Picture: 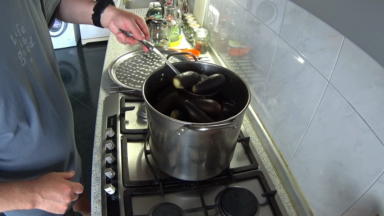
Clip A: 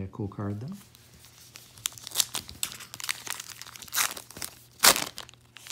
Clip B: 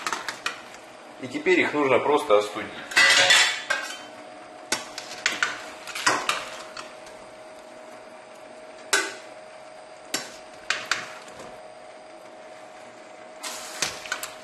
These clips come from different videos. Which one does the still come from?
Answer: B